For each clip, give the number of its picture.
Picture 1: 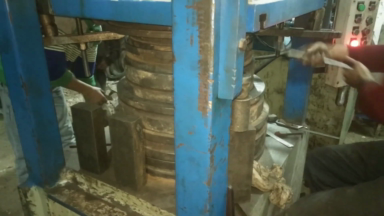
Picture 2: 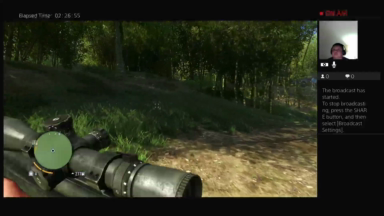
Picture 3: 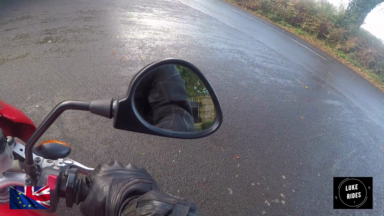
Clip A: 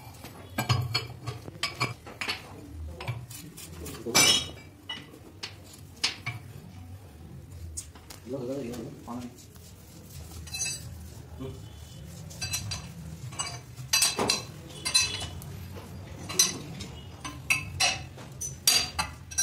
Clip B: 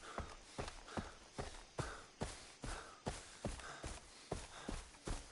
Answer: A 1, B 2